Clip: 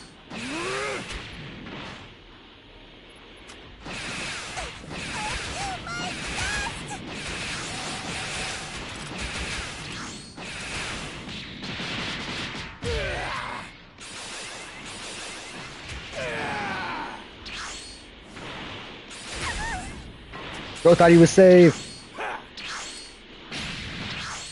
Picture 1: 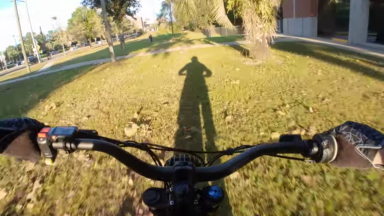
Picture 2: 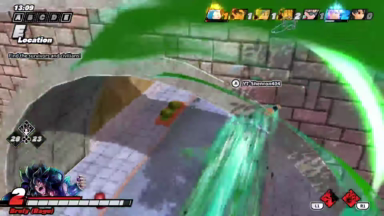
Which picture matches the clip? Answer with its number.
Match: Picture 2